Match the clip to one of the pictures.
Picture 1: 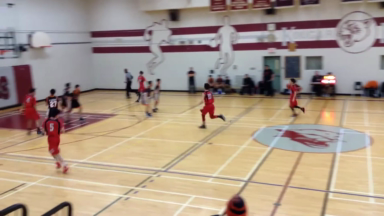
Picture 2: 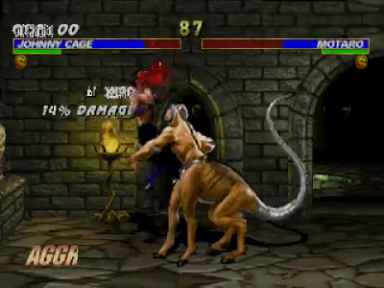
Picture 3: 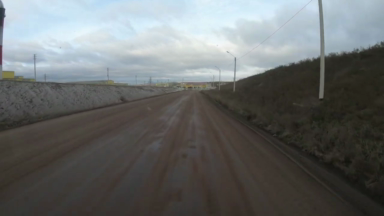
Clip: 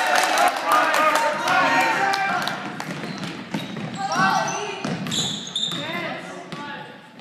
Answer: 1